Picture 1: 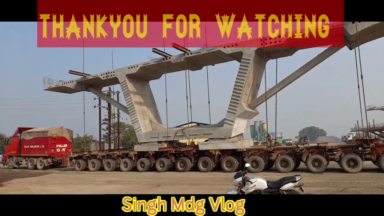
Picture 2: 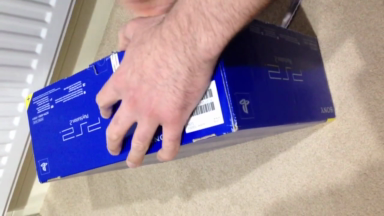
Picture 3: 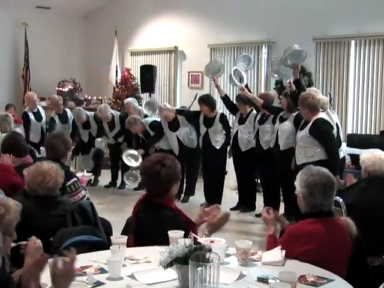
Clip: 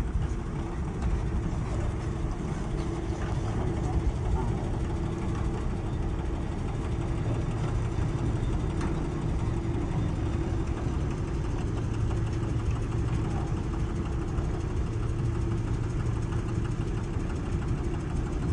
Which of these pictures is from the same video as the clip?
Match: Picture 1